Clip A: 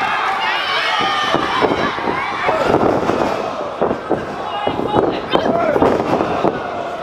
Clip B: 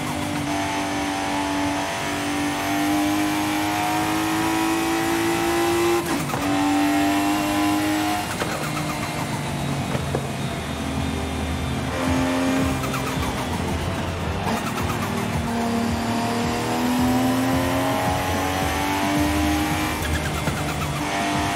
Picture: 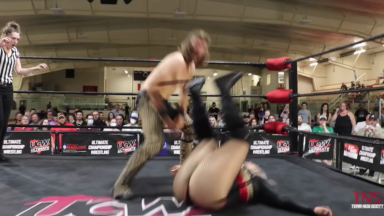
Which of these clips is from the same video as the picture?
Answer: A